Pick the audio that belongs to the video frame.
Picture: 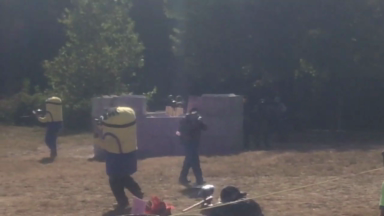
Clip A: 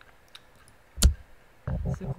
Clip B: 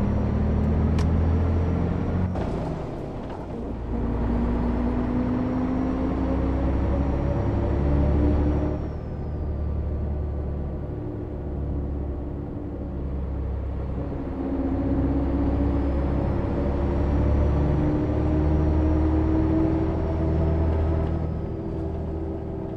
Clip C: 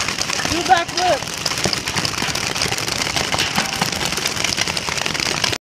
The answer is C